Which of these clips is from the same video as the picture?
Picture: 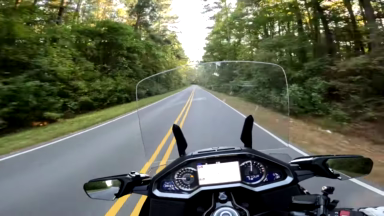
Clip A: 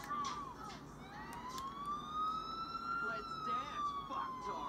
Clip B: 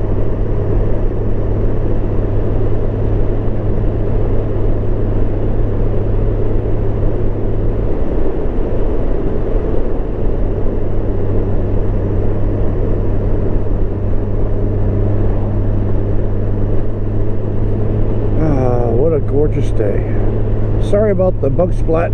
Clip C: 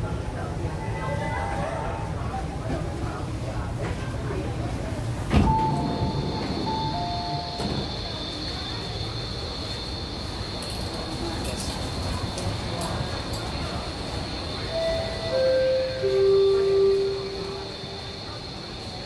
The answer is B